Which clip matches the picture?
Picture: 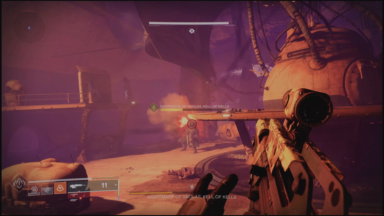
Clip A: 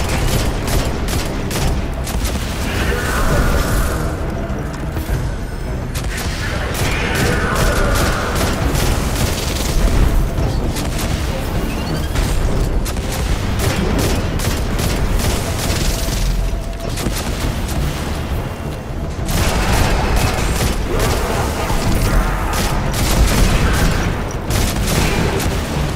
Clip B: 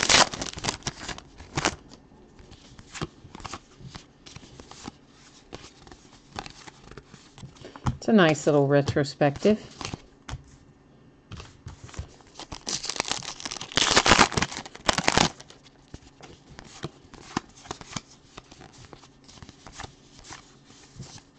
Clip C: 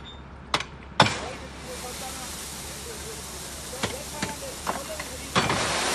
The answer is A